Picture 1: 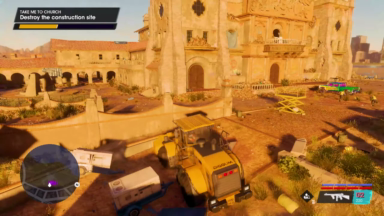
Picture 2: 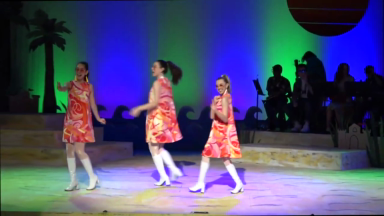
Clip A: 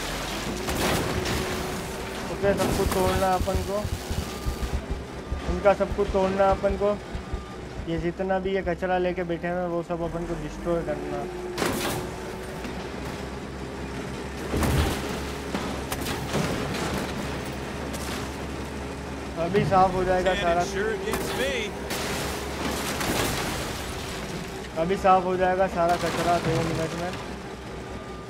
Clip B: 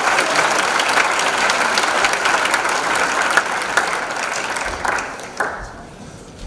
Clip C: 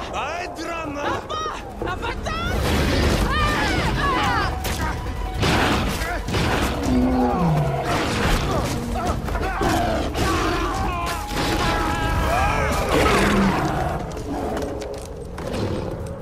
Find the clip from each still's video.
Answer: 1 A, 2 B